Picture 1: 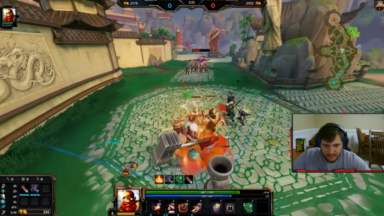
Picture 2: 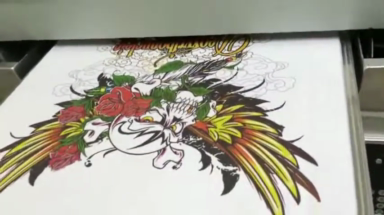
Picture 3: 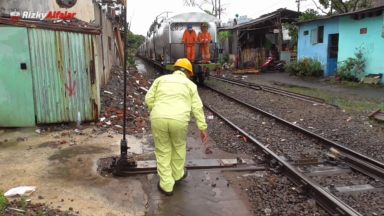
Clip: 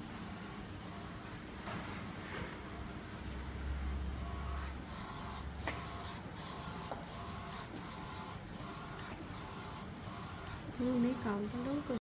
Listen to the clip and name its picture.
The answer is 2